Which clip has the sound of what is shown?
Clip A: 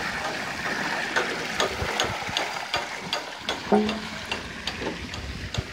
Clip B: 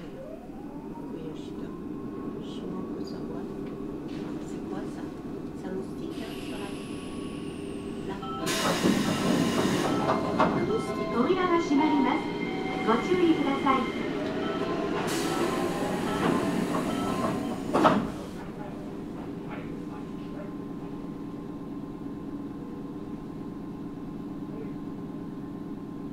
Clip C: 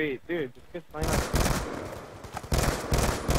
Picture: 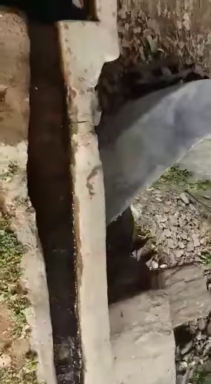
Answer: A